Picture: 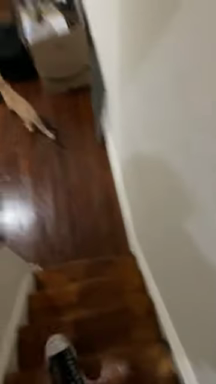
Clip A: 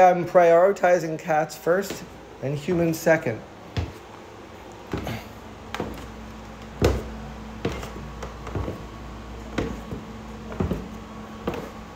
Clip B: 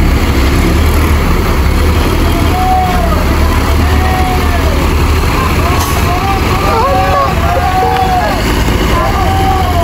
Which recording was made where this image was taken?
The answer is A